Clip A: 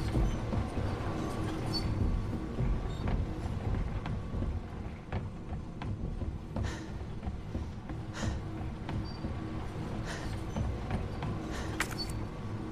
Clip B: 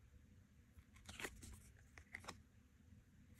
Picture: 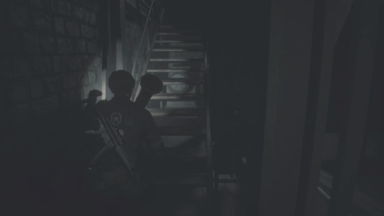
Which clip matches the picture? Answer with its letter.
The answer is A